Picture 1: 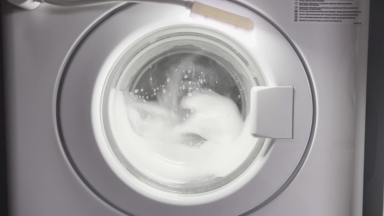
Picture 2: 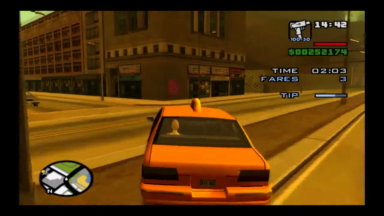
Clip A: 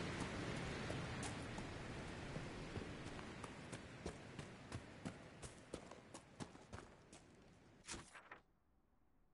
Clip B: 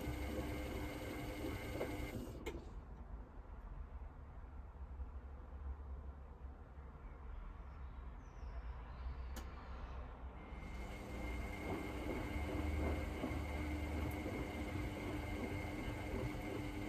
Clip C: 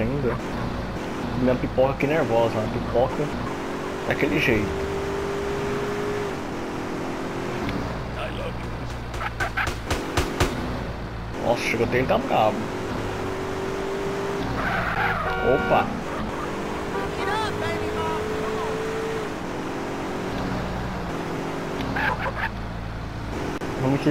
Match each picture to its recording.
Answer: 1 B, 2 C